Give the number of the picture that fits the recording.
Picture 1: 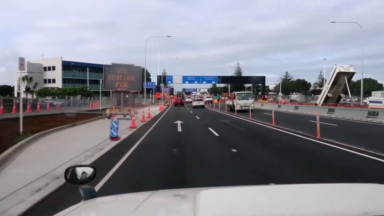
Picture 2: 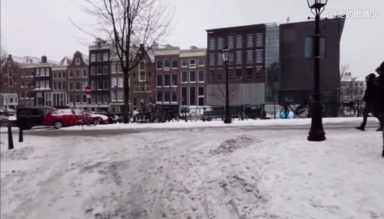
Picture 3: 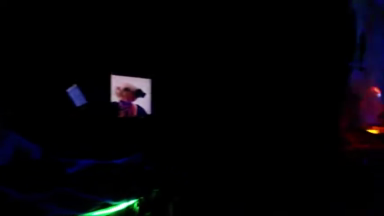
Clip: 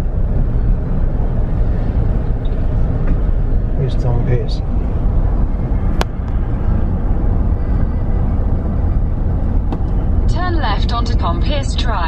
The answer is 1